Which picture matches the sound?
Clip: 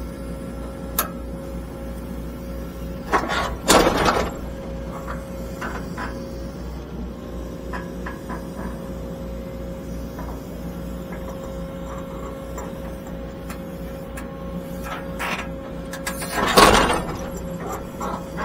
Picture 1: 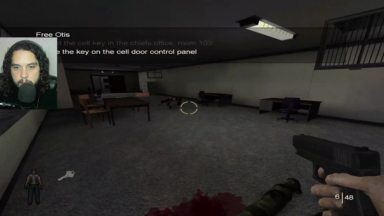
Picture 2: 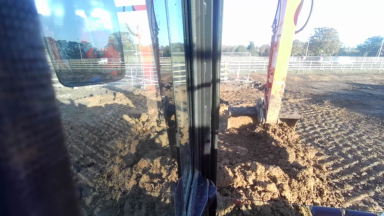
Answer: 2